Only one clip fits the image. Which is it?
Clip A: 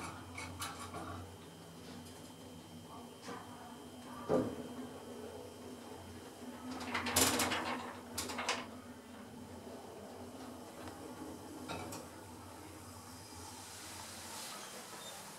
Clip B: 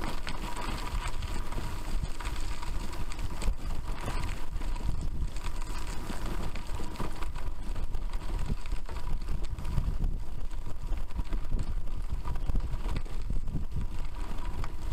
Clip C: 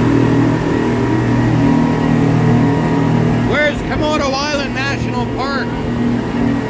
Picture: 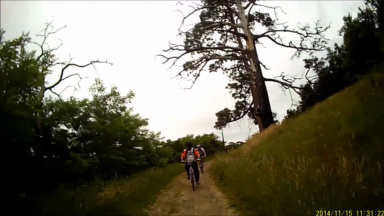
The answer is B